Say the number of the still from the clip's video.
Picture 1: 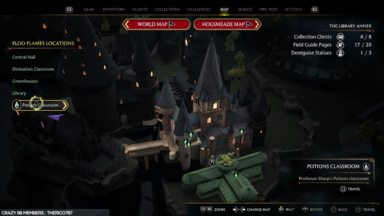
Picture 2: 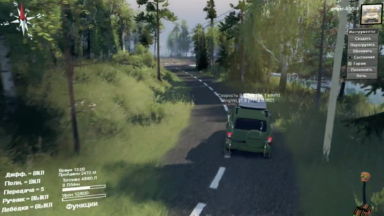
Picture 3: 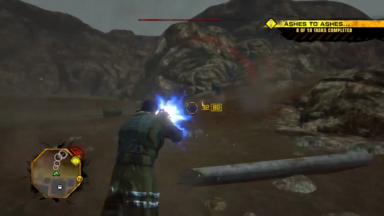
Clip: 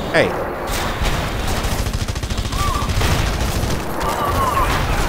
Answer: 3